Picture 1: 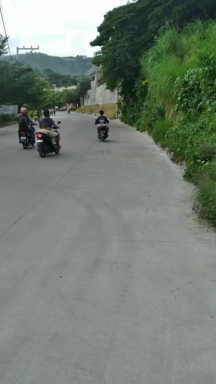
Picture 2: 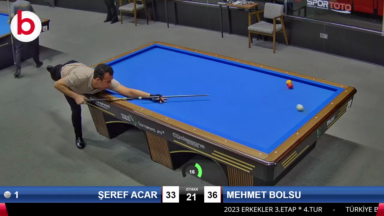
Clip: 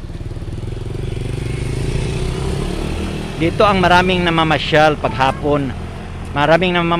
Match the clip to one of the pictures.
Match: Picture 1